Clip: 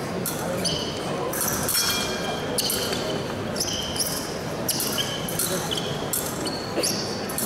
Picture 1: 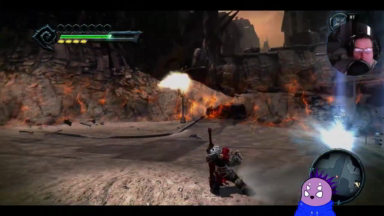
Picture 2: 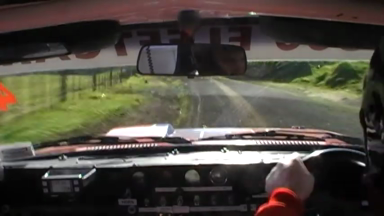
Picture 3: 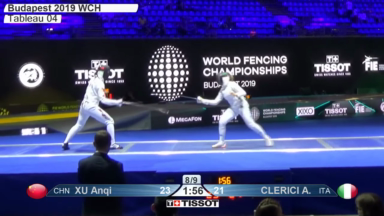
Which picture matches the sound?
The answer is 3